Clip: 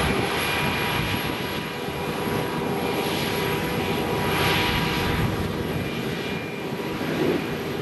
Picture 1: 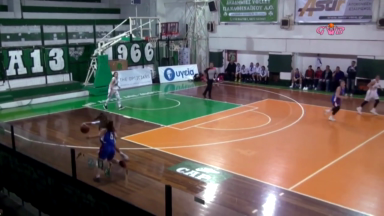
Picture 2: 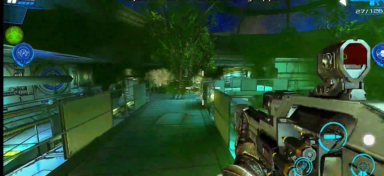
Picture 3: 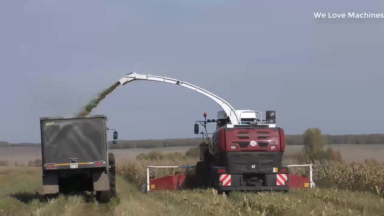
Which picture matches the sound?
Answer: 3